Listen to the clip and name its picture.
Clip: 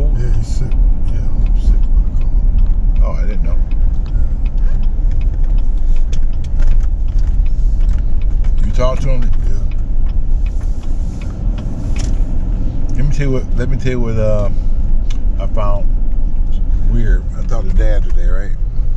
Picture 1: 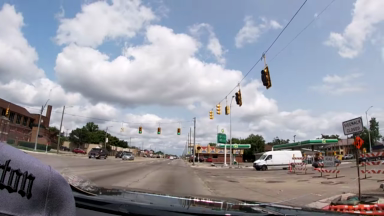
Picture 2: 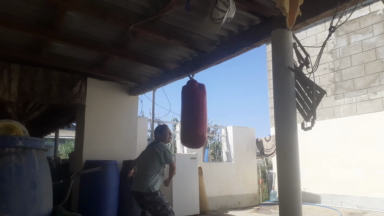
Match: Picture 1